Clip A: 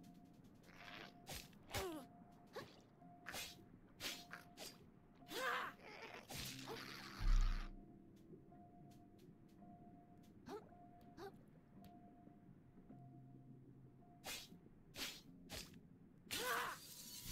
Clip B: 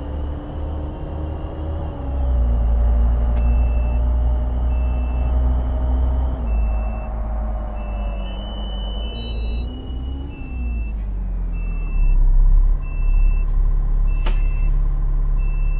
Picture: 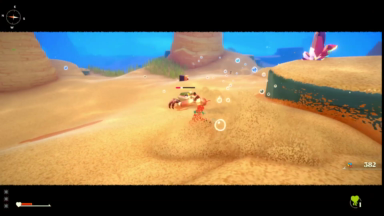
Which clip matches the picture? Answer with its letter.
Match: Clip A